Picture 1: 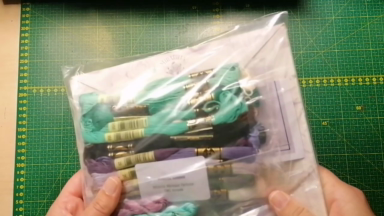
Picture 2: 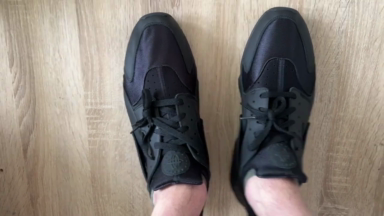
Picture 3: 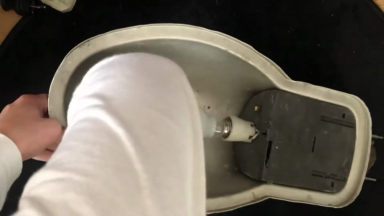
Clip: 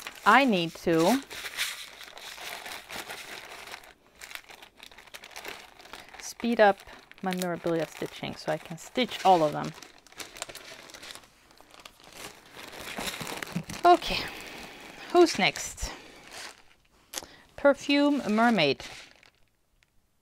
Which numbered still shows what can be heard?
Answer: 1